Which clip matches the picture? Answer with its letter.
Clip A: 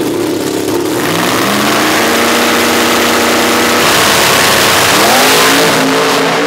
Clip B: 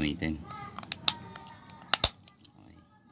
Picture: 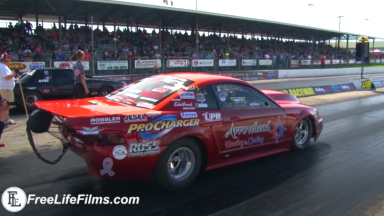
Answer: A